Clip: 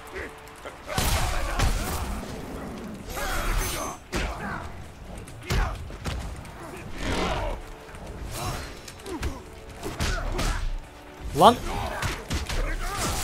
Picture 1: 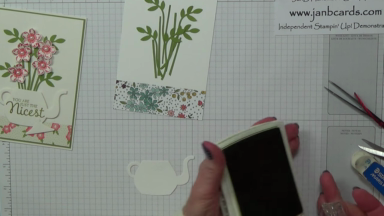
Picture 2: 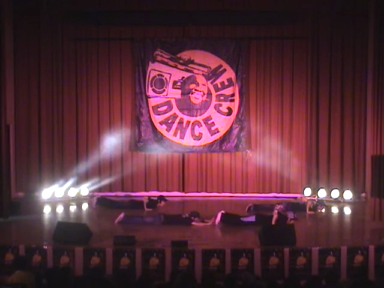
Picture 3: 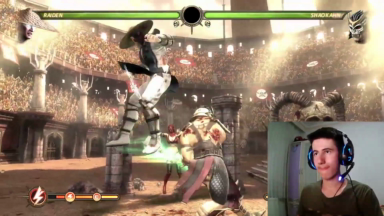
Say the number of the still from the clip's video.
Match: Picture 3